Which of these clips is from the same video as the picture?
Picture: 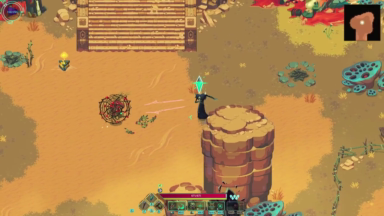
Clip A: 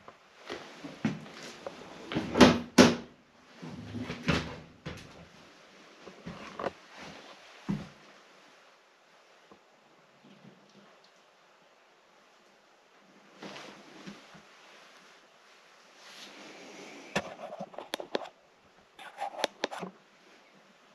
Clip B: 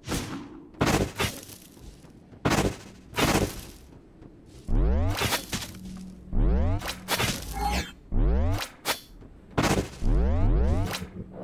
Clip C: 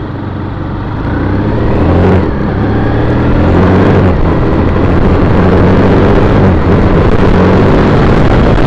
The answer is B